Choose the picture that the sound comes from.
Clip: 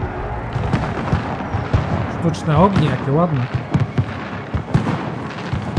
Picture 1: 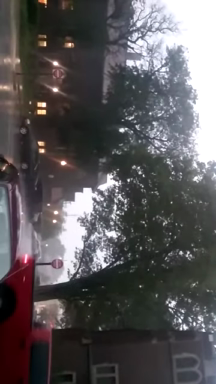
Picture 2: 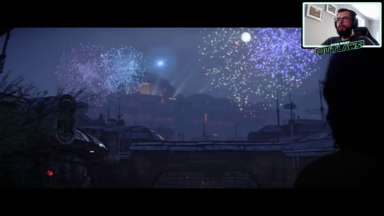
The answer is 2